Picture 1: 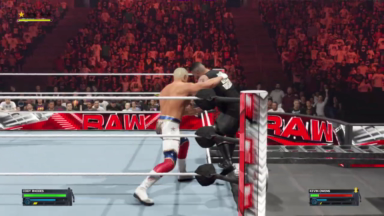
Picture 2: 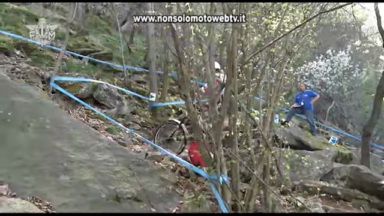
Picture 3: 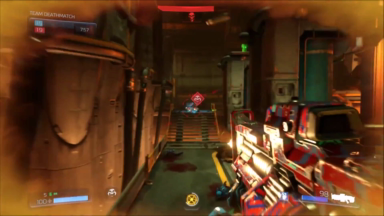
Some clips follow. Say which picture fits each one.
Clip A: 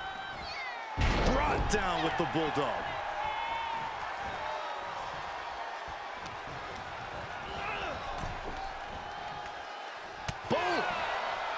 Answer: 1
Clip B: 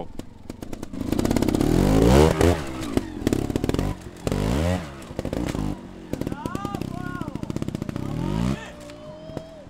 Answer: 2